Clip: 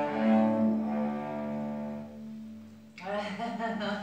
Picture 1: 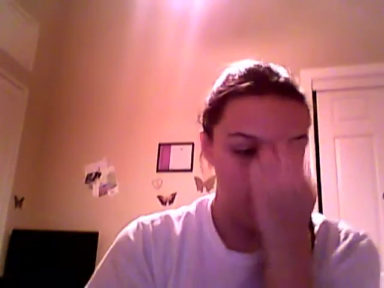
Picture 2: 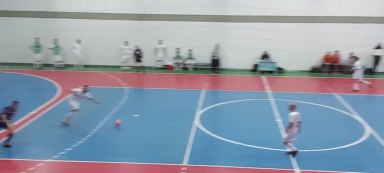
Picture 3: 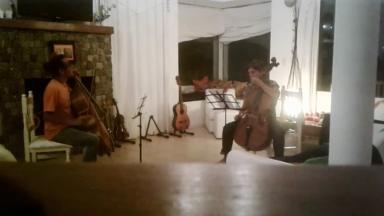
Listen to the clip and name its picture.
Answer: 3